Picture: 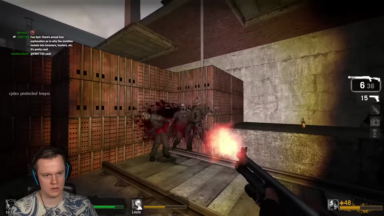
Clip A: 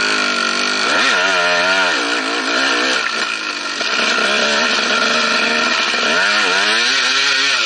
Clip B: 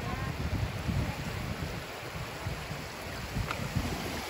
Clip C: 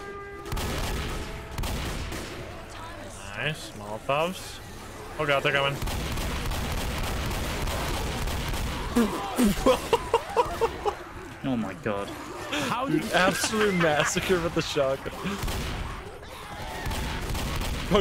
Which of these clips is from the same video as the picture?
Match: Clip C